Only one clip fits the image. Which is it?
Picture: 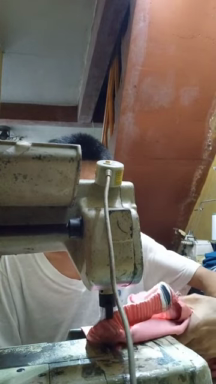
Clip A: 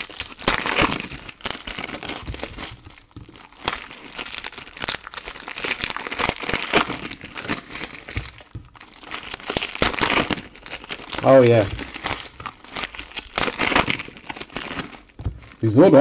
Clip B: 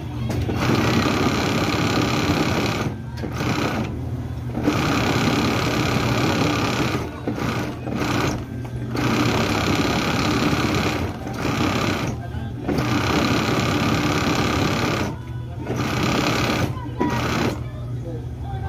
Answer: B